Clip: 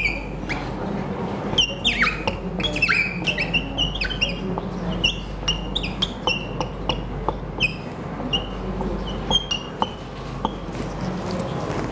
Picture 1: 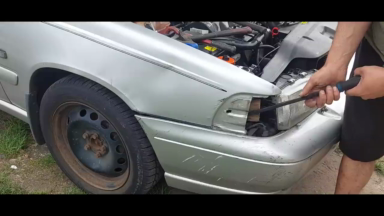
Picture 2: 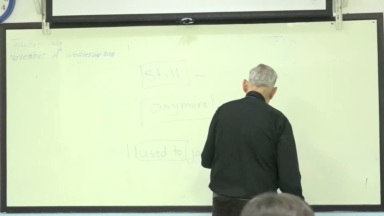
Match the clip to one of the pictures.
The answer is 2